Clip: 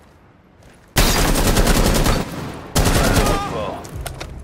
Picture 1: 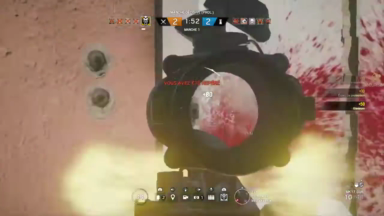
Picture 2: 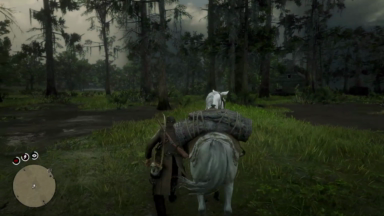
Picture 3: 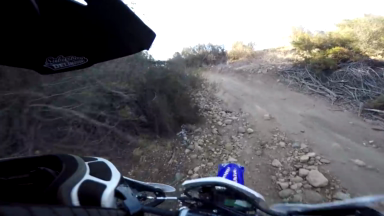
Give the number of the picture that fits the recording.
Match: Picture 1